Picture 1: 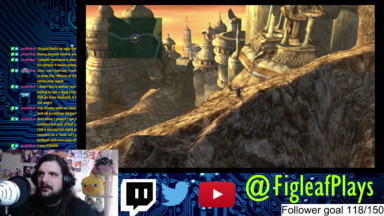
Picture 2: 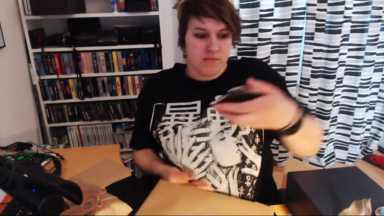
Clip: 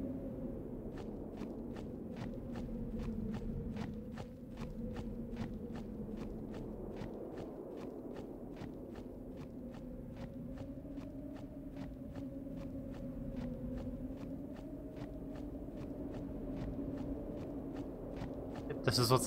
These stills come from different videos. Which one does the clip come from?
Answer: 1